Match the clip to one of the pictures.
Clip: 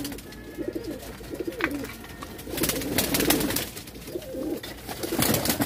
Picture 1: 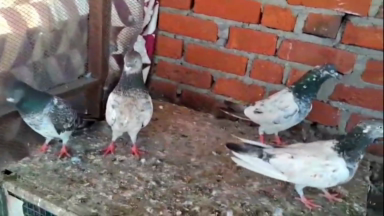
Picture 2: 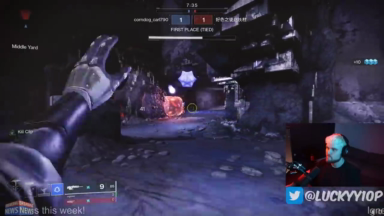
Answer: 1